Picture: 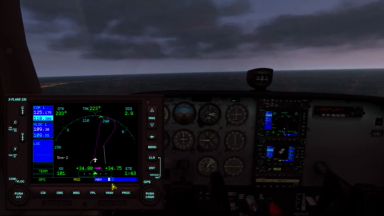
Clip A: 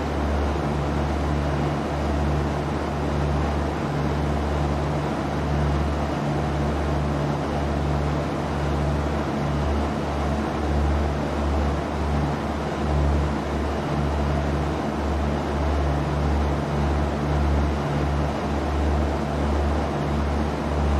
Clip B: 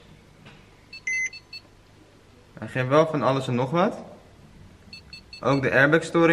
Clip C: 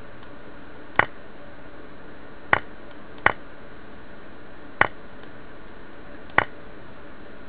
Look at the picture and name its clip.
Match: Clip A